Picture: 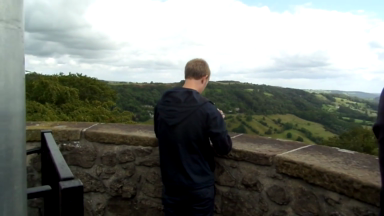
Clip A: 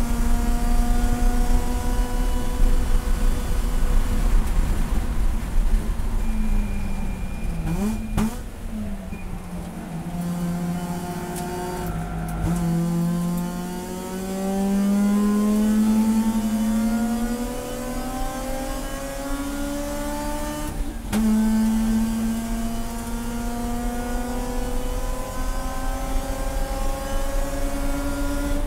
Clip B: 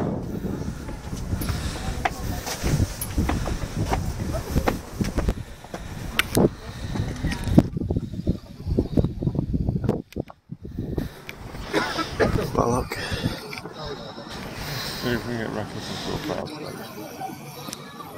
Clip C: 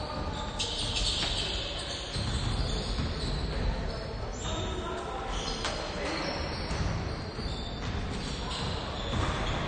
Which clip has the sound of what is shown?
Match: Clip B